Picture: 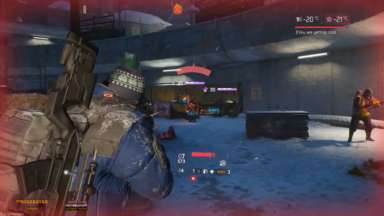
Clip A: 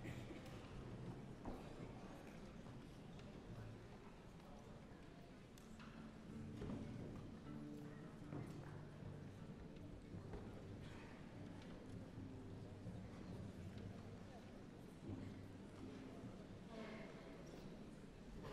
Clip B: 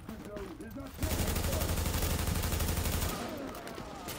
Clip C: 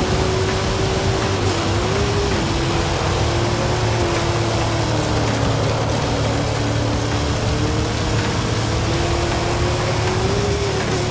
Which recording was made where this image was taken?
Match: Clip B